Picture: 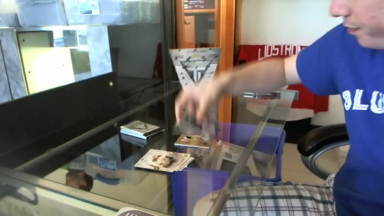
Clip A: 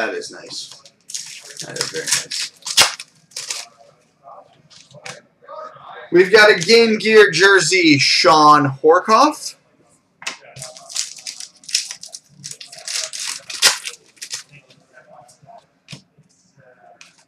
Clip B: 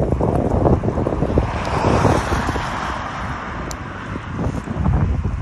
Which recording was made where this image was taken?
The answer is A